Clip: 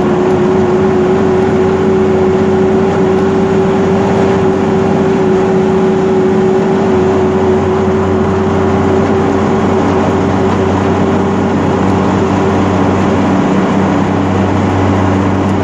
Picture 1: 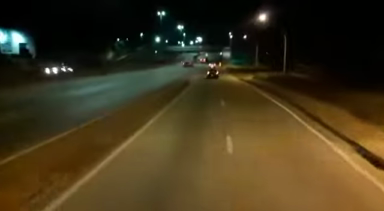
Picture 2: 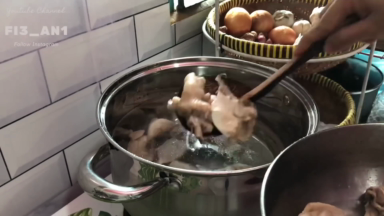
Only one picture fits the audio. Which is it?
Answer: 1